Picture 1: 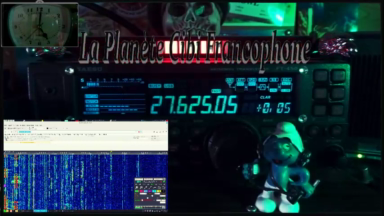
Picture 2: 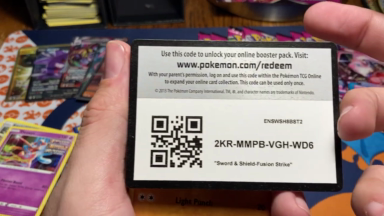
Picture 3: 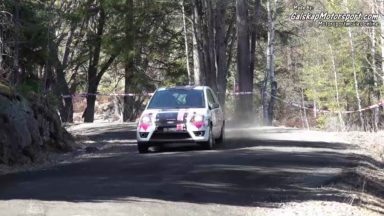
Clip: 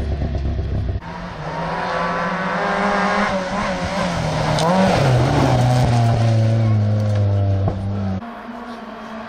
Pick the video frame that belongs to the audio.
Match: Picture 3